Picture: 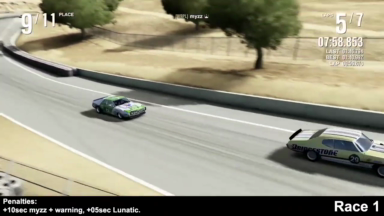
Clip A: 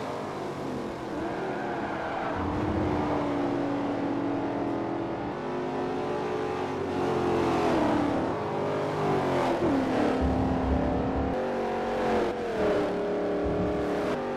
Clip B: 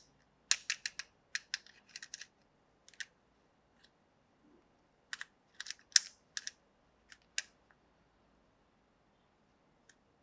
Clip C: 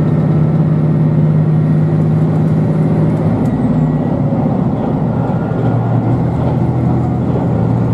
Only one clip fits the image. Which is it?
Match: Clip A